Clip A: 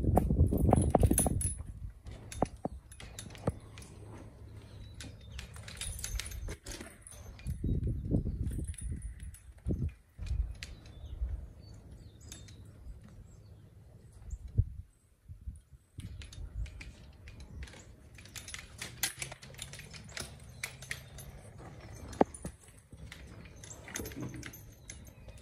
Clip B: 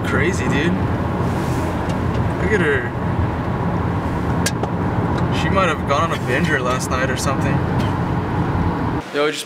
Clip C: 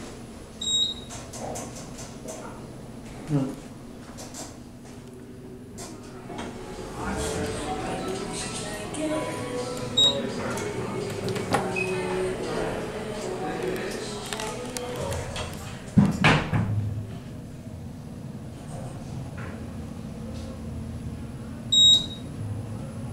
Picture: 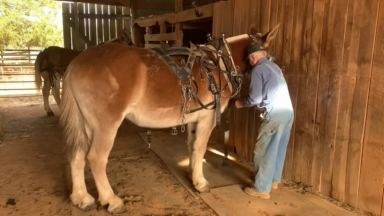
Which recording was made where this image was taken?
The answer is A